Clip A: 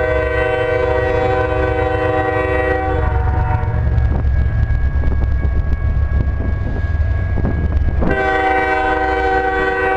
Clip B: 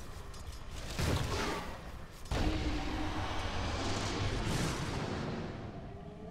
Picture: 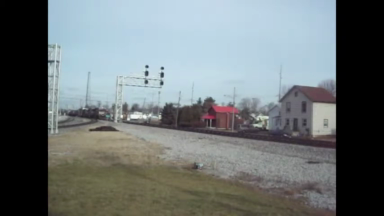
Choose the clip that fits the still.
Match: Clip A